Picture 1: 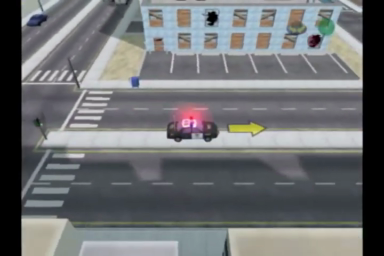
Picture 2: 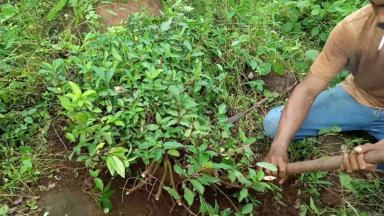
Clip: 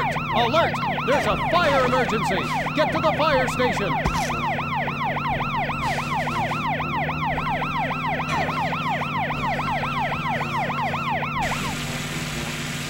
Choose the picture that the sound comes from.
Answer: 1